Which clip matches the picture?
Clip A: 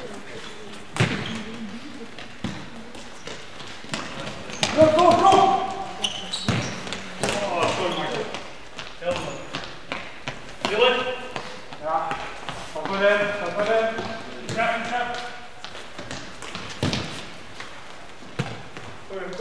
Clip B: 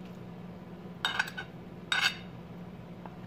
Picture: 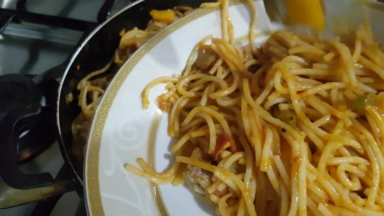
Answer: B